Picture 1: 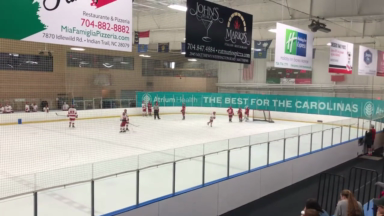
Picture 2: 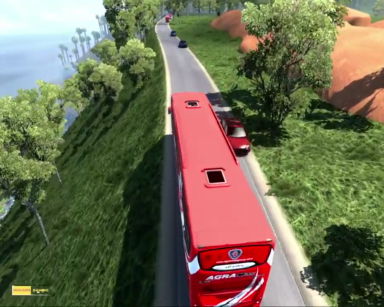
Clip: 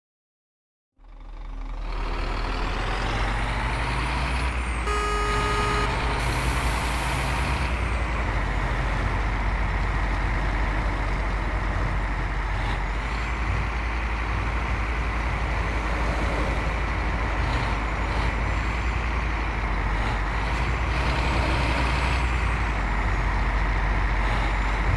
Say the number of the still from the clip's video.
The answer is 2